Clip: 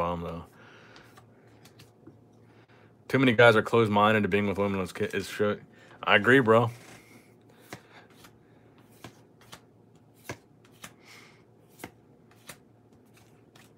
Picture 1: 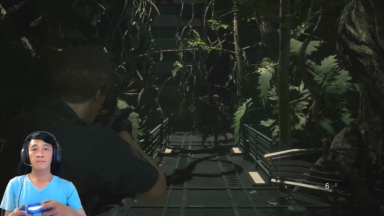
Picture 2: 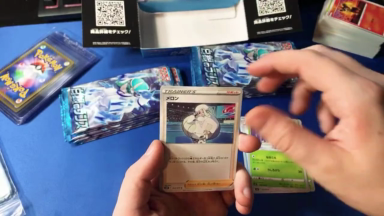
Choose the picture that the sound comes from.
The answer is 2